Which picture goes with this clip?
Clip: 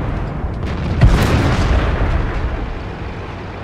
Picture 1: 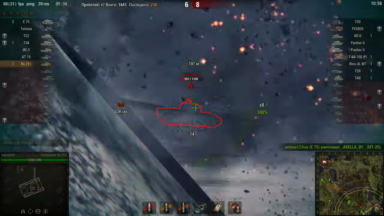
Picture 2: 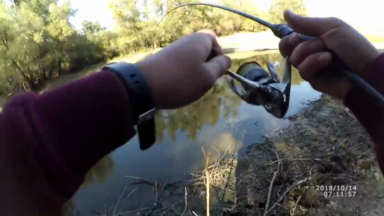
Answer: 1